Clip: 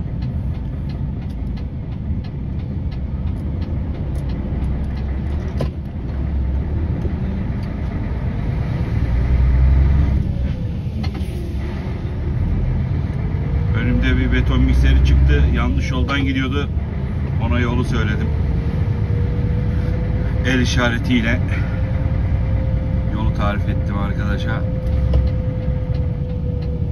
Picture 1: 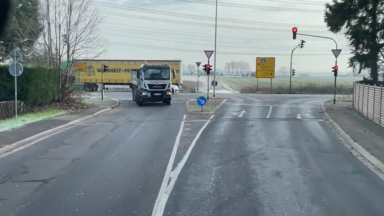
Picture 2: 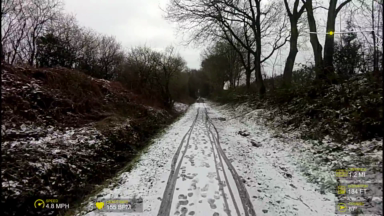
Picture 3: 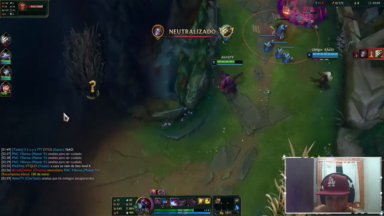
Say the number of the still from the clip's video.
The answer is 1